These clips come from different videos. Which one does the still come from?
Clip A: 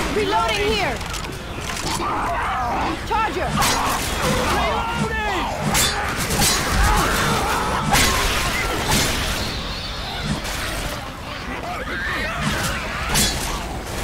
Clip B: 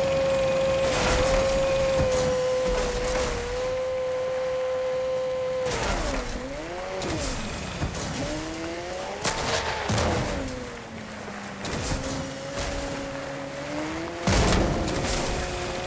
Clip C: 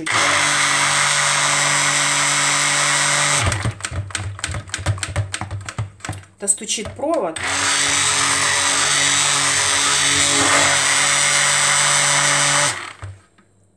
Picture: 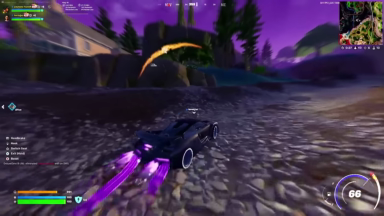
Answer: B